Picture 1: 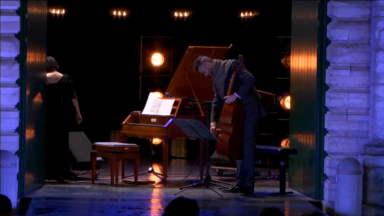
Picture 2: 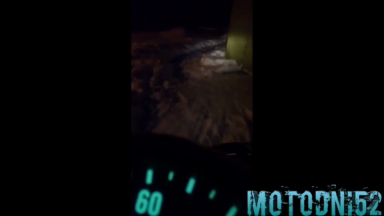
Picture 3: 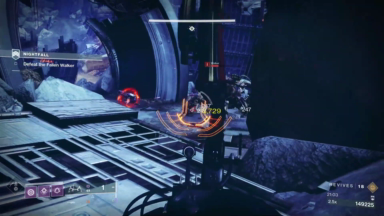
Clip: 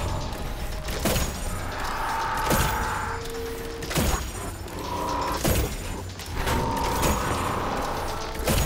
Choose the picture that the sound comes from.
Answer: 3